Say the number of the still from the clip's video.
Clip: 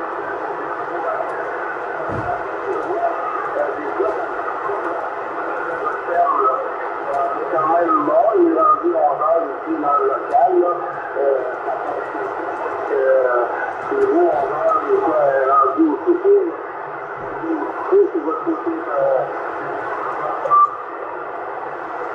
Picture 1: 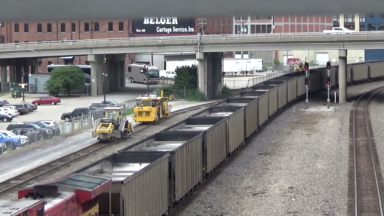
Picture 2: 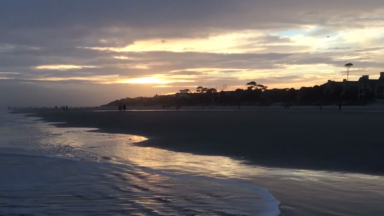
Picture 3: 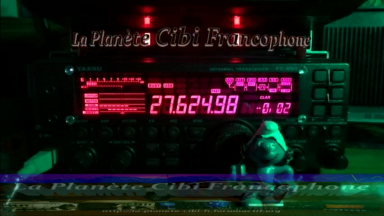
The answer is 3